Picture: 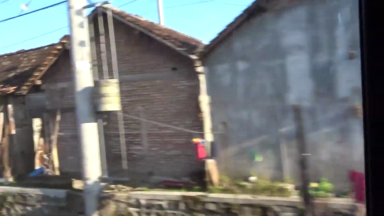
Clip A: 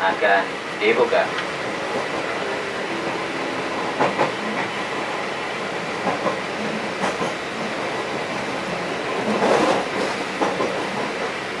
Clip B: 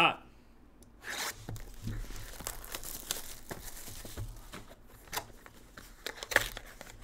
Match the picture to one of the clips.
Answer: A